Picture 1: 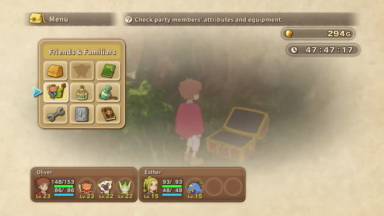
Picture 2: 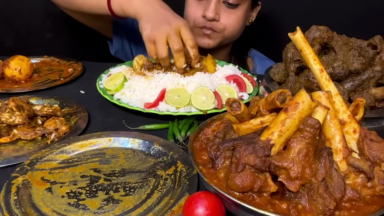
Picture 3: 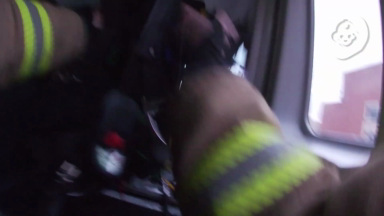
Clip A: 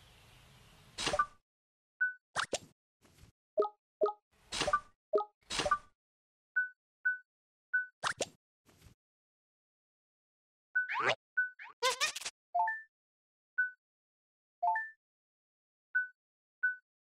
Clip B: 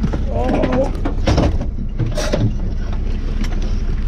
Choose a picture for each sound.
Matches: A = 1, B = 3